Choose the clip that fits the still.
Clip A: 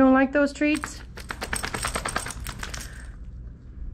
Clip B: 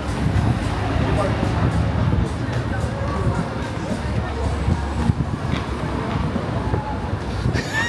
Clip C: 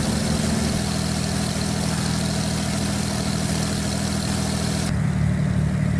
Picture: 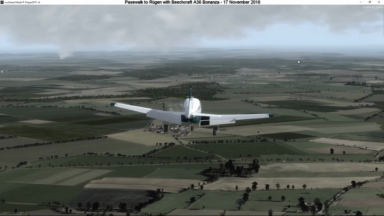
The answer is C